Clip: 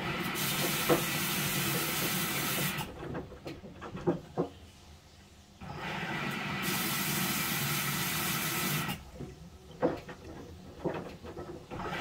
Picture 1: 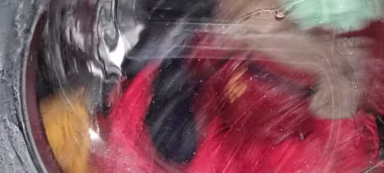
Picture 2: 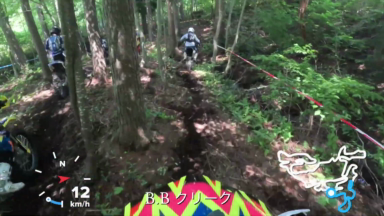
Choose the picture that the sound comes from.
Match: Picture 1